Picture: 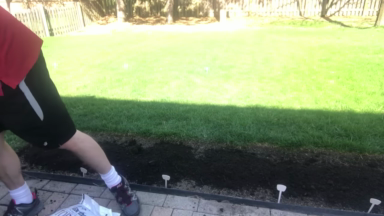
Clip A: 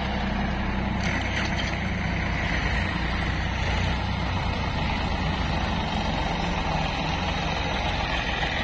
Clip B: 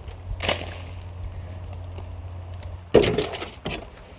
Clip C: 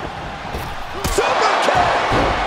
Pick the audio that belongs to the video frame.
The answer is B